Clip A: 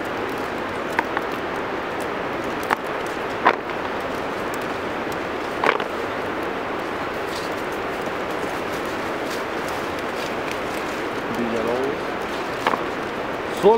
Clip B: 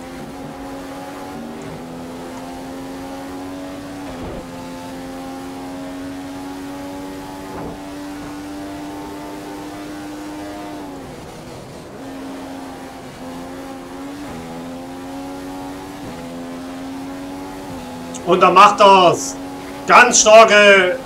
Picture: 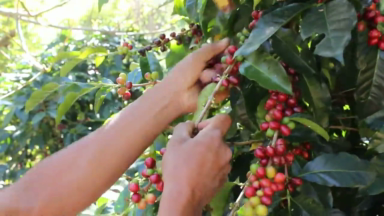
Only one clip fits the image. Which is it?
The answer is A